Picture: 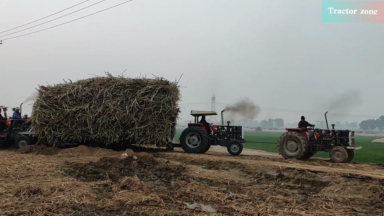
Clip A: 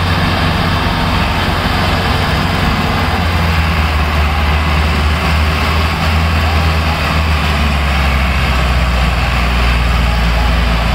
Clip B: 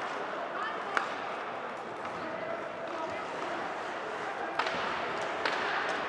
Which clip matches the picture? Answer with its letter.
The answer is A